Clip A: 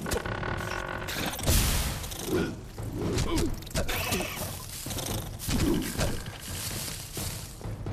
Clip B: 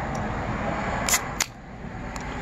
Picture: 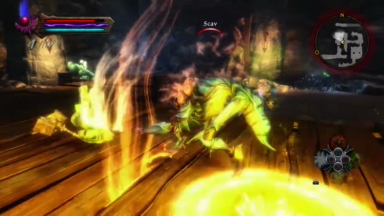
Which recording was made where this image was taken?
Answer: A